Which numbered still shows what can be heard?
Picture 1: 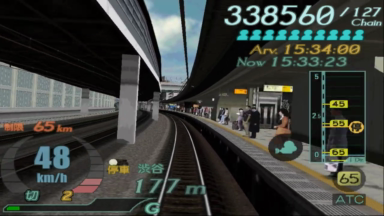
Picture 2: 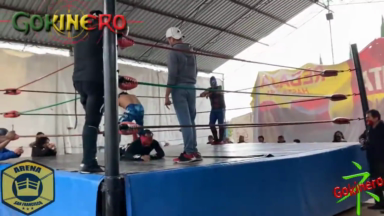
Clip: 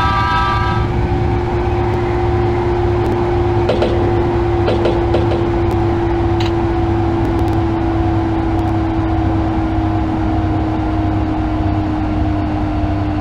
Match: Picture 1